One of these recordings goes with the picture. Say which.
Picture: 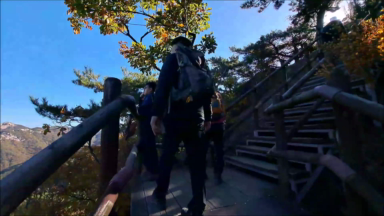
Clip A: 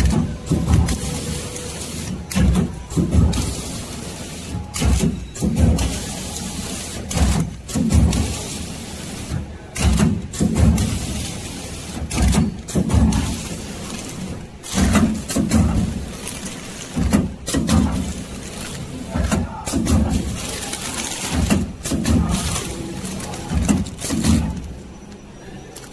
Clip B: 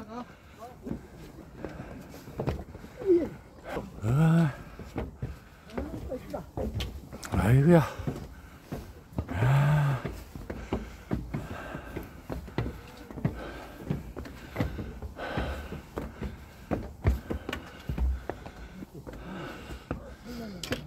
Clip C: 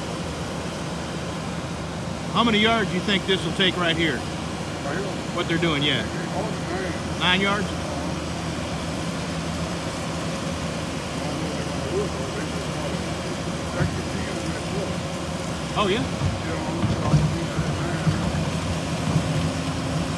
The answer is B